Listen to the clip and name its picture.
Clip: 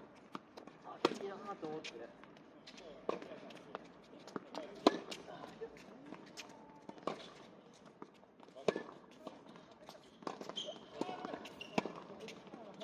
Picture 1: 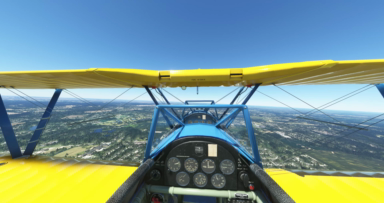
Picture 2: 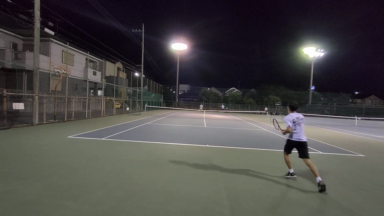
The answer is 2